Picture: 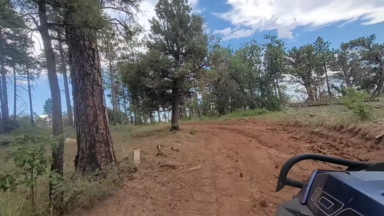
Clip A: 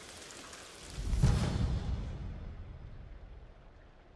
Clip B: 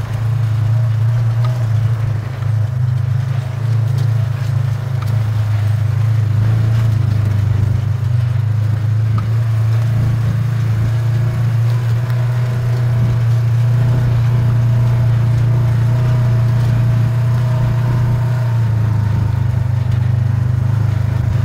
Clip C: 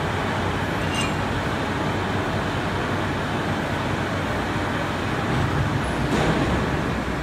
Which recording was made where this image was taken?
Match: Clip B